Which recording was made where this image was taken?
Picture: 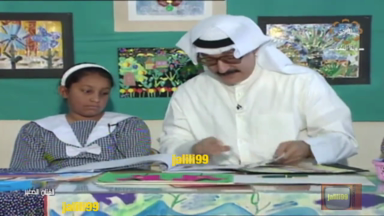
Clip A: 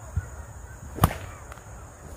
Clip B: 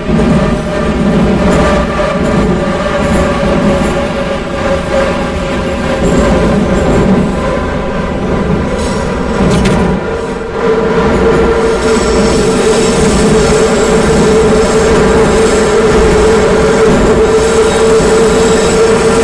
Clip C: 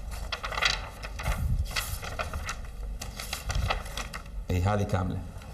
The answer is C